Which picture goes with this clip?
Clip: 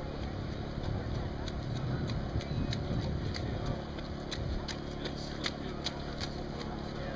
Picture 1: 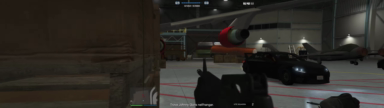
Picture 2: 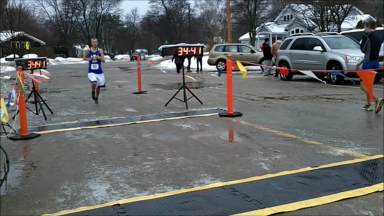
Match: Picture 2